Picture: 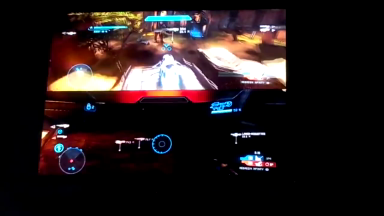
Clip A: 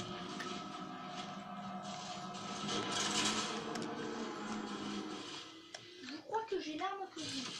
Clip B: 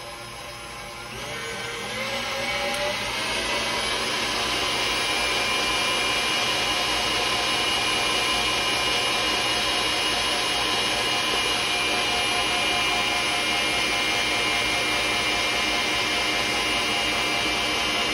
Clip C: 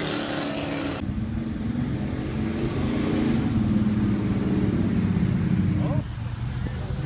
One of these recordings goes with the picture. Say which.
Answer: A